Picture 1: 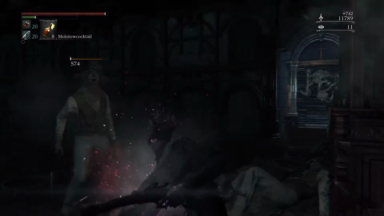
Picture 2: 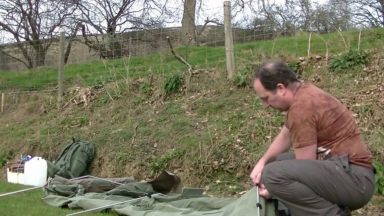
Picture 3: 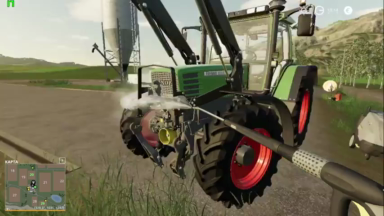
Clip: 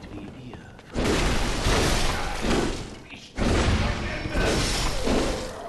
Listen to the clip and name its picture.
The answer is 1